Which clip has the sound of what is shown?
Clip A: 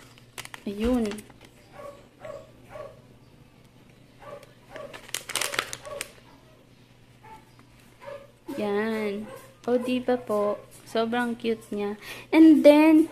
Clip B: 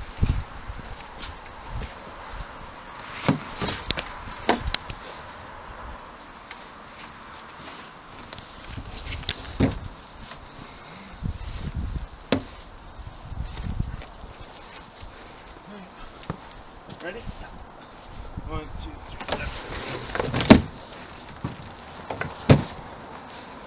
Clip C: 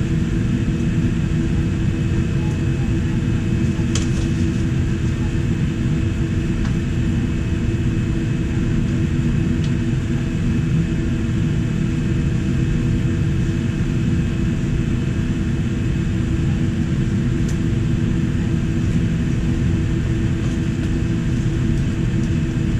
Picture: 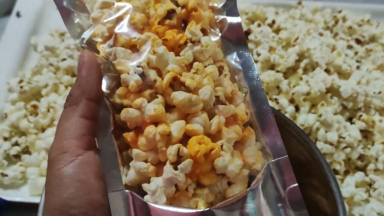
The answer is A